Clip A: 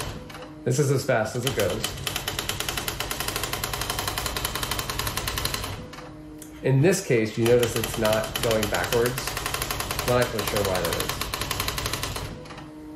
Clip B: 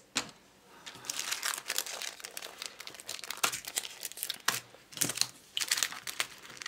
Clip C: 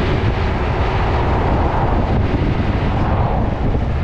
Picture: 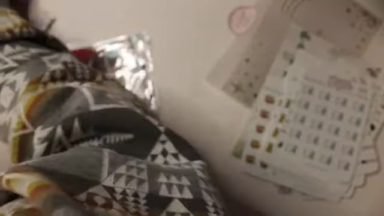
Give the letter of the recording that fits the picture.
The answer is B